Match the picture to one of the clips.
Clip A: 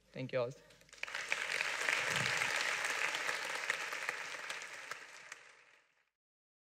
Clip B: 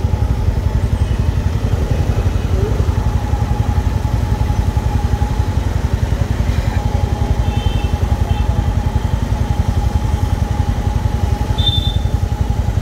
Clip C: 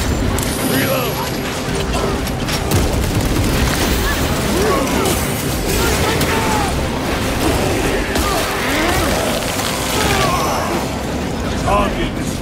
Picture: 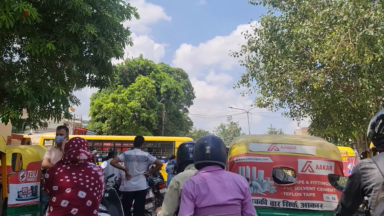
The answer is B